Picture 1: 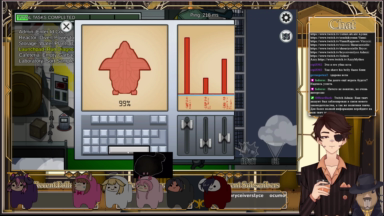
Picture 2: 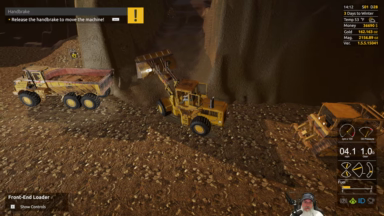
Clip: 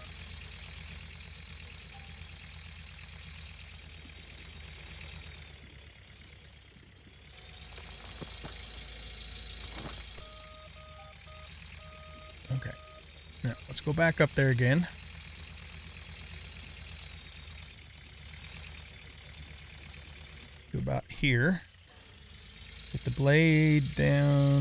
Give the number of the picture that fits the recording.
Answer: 2